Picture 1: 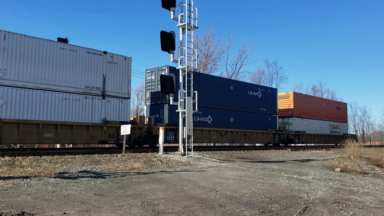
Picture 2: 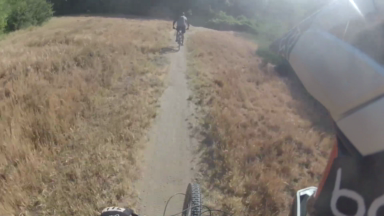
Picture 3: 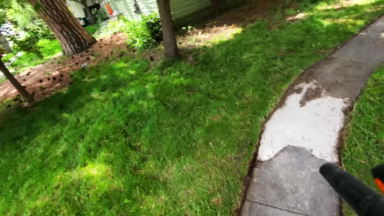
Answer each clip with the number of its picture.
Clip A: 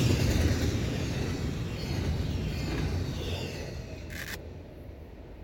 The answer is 1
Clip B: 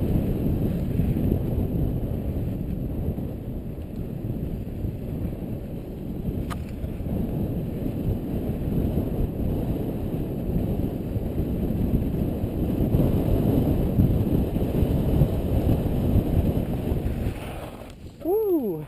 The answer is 2